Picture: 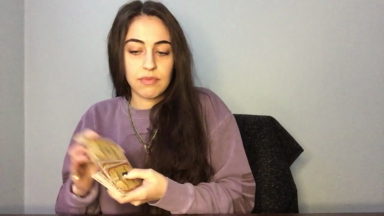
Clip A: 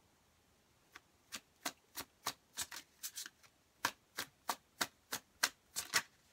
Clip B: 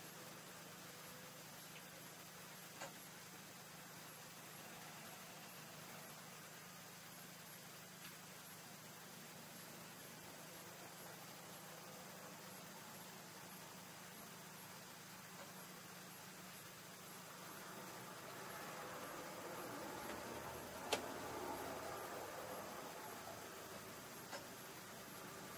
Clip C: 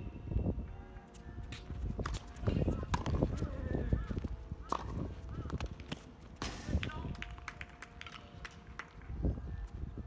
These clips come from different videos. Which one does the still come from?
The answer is A